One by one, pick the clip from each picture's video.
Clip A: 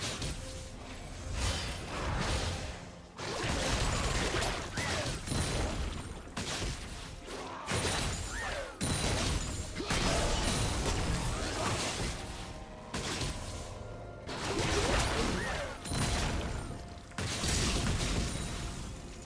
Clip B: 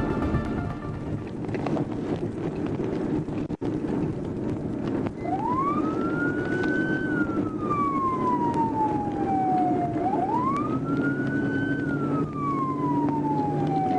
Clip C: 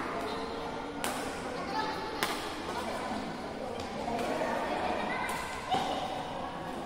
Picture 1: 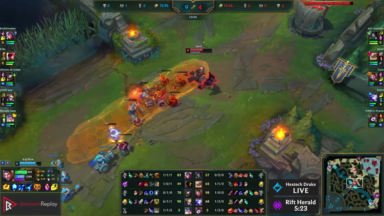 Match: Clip A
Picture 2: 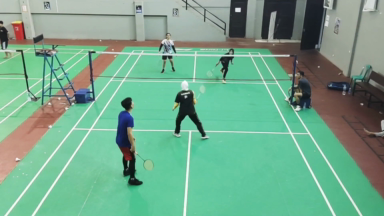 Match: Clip C